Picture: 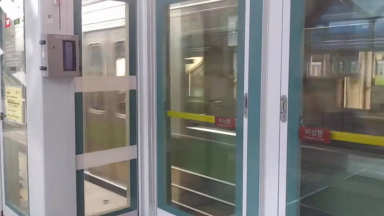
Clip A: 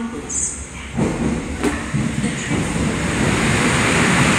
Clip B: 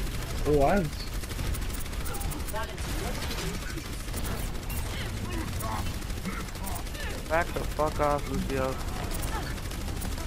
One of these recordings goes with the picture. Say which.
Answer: A